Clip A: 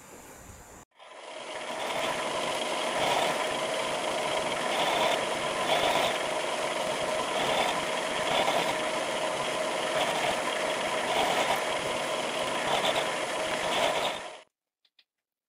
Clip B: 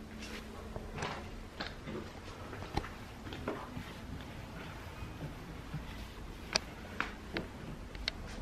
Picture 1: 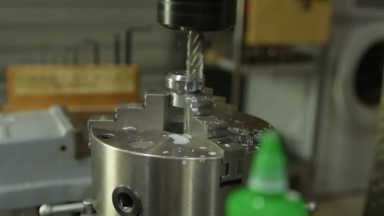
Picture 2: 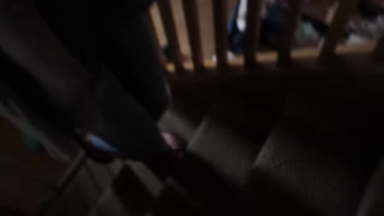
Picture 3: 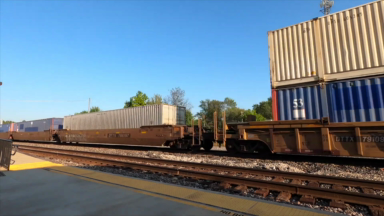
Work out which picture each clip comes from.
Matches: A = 1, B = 2